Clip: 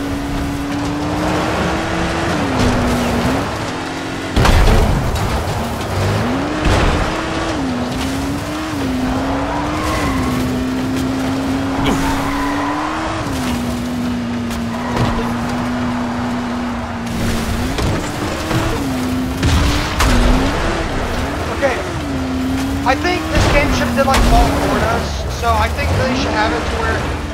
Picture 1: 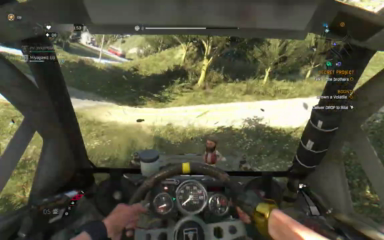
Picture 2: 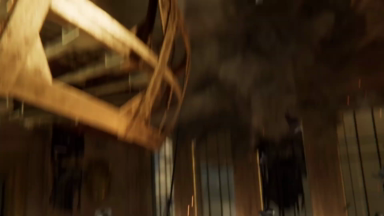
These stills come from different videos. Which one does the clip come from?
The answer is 1